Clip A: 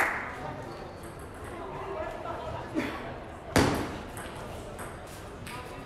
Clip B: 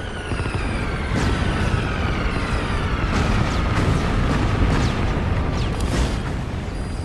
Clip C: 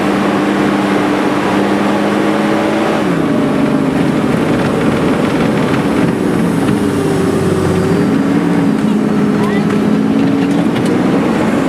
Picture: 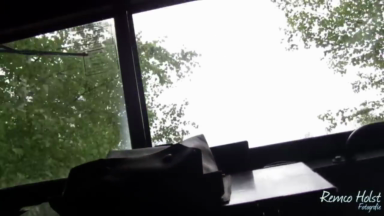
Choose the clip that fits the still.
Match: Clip C